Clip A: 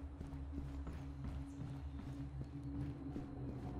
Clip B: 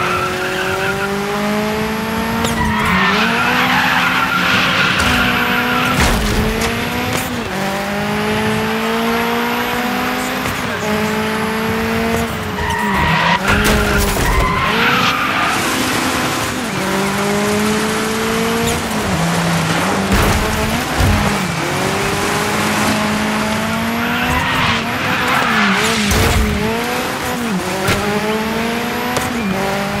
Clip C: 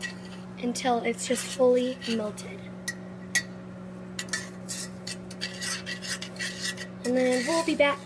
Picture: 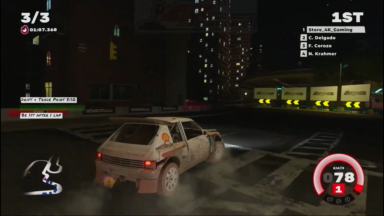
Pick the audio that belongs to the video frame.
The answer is B